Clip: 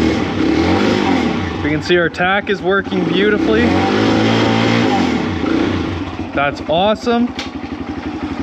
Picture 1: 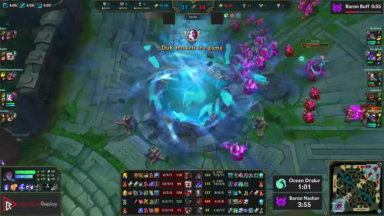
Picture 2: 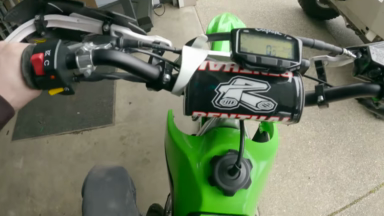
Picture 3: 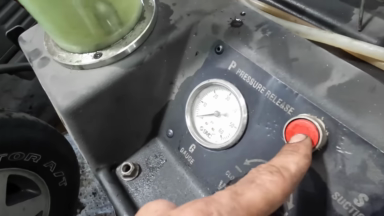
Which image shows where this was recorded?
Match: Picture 2